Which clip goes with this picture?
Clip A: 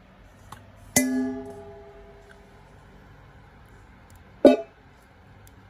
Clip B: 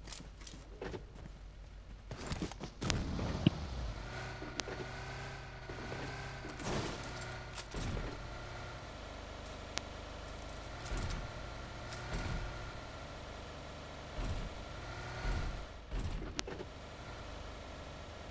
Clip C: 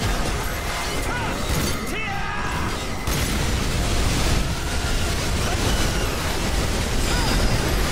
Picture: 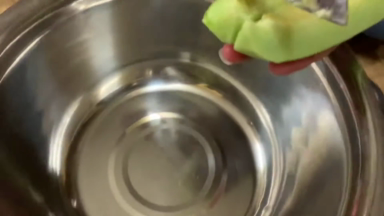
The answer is A